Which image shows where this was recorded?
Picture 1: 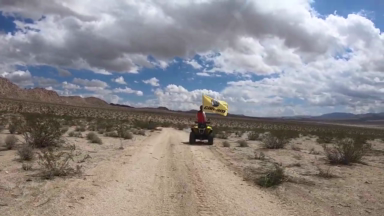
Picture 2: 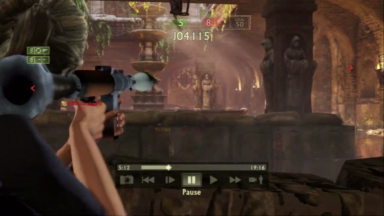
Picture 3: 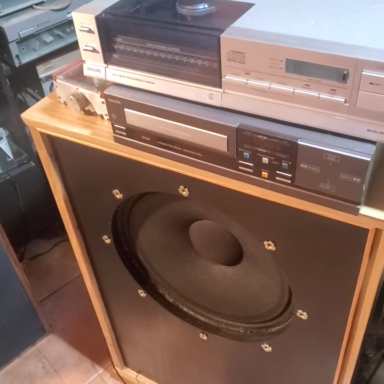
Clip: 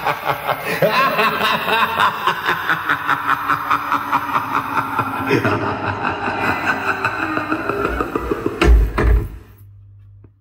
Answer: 3